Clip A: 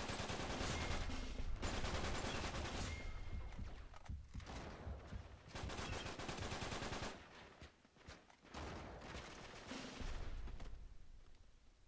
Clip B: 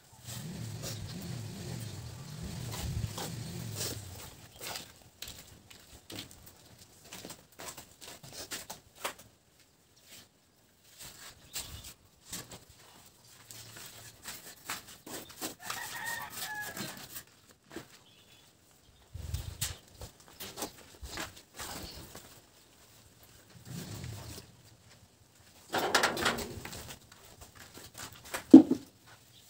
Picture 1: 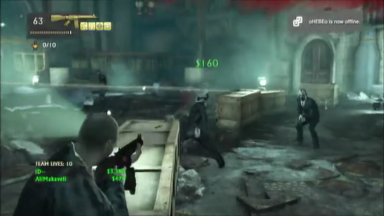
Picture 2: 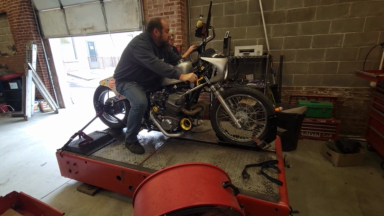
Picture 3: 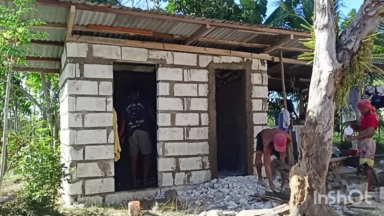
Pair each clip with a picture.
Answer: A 1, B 3